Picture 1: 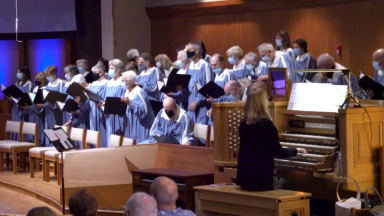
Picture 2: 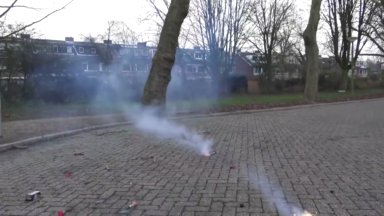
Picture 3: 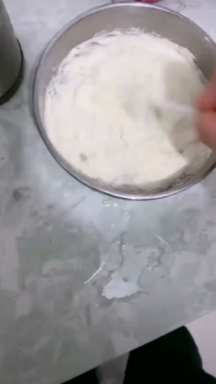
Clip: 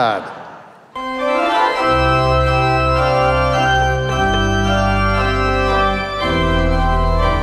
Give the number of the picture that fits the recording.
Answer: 1